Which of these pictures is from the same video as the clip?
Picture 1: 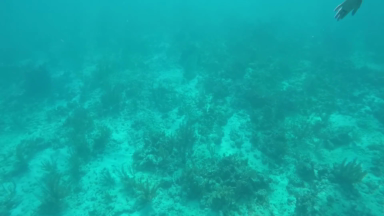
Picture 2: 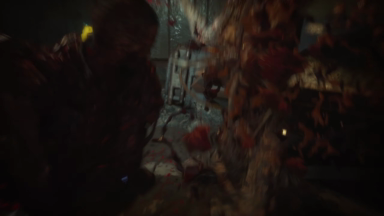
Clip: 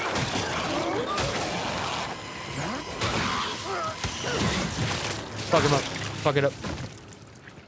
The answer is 2